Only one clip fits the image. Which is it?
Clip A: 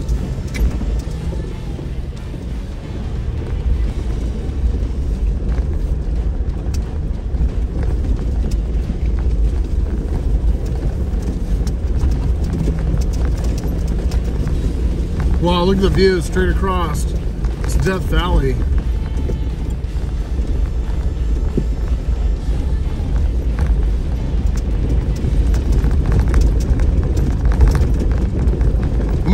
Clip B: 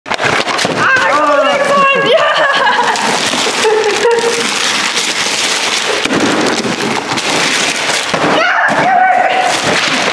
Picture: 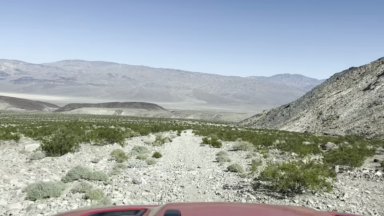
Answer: A